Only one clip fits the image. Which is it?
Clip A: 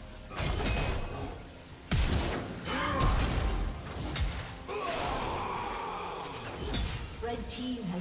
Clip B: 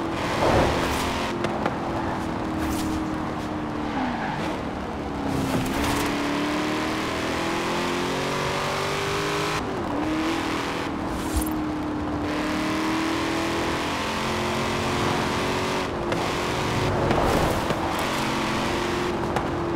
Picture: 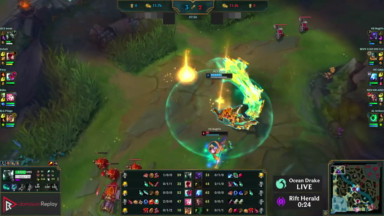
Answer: A